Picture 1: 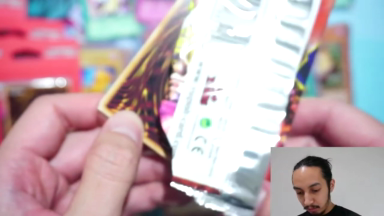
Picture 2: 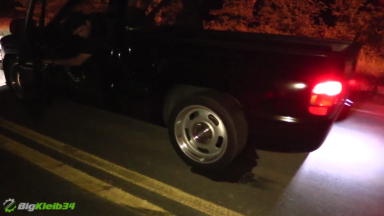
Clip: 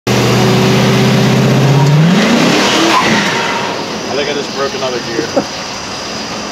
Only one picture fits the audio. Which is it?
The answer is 2